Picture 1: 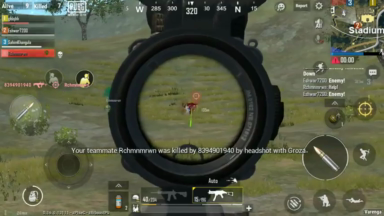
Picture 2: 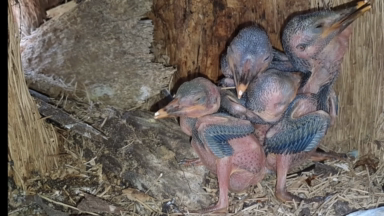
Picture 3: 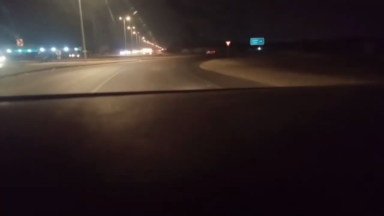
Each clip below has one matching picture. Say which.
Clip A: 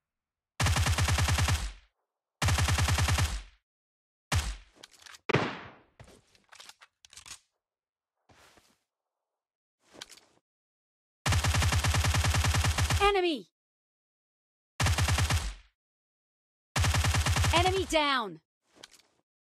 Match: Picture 1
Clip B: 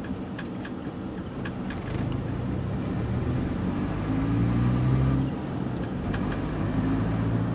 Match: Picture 3